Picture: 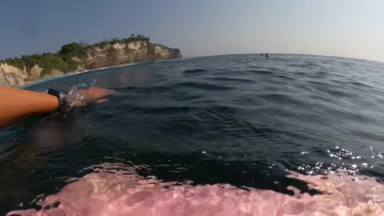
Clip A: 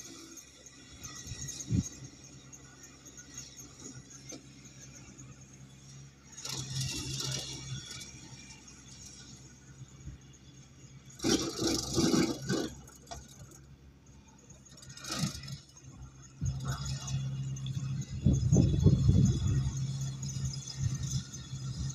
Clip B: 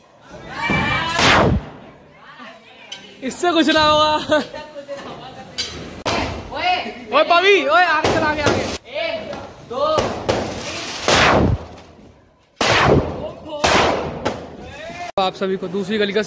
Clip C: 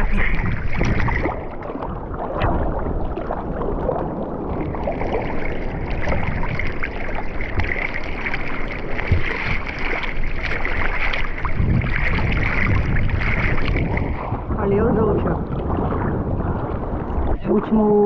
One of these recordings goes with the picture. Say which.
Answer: C